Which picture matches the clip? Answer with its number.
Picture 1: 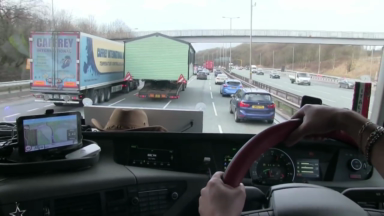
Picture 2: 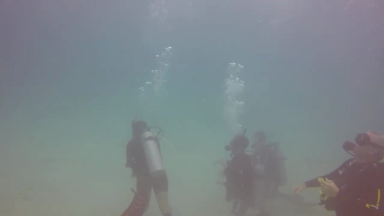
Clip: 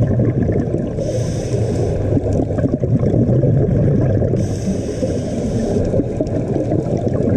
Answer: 2